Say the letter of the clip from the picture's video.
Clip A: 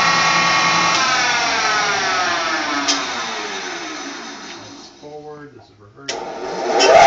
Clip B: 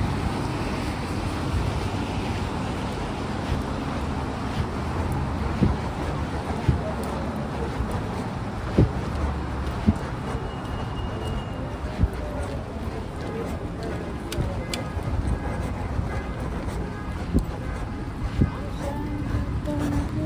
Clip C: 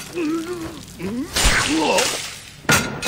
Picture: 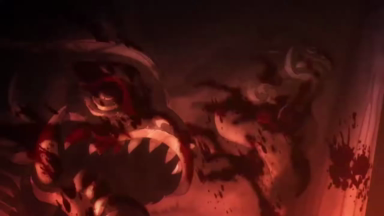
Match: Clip C